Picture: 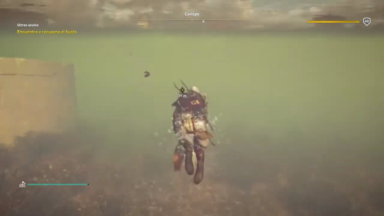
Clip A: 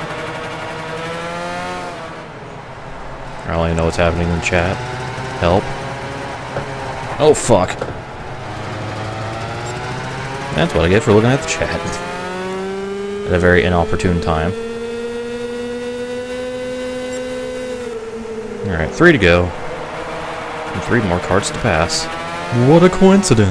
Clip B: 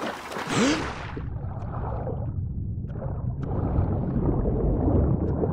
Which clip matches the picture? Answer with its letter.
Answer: B